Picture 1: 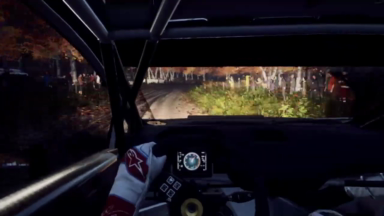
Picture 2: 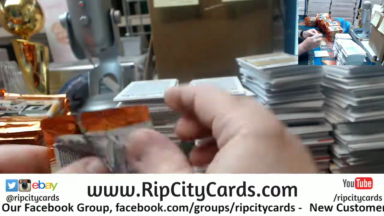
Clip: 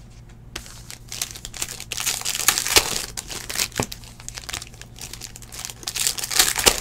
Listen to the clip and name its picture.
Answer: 2